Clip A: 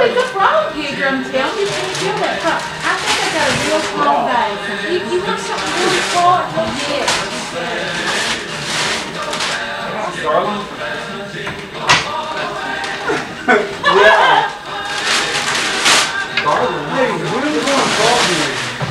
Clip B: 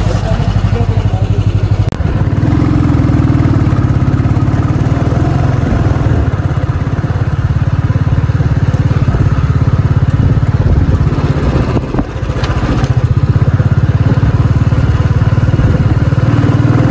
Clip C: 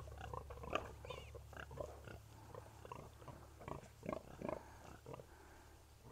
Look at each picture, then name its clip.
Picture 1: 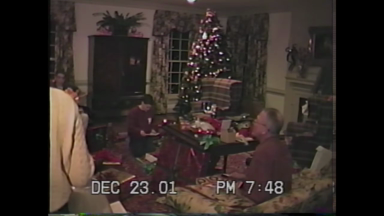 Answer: A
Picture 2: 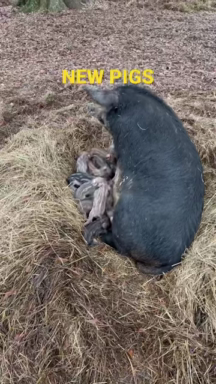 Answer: C